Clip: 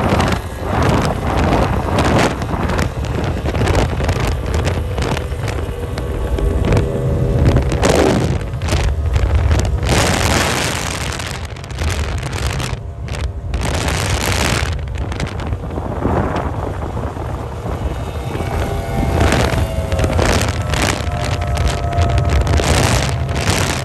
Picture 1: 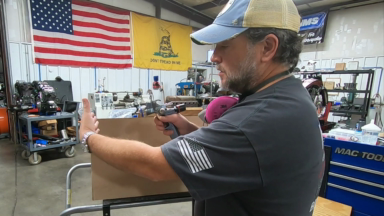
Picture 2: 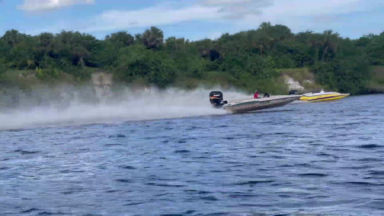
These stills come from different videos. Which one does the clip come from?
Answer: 2